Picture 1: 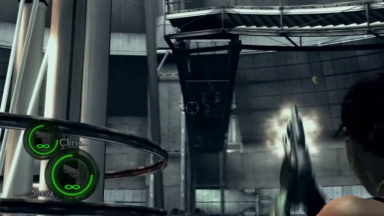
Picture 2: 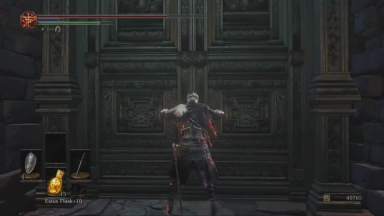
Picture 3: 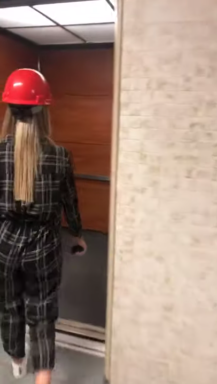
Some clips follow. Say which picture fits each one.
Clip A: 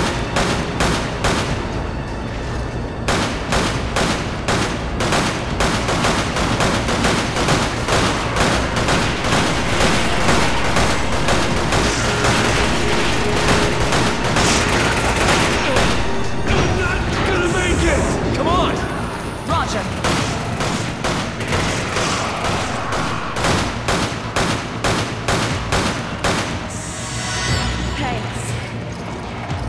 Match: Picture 1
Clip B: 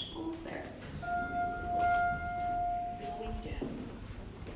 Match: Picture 3